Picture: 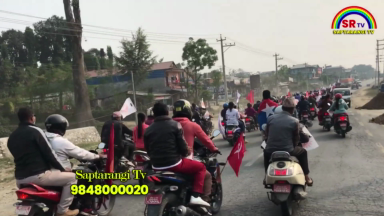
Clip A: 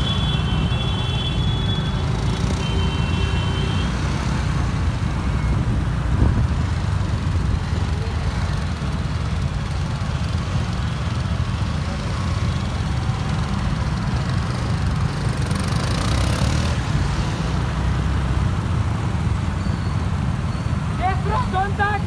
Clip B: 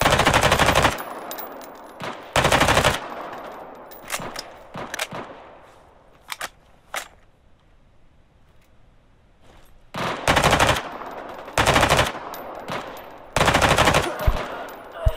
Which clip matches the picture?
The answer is A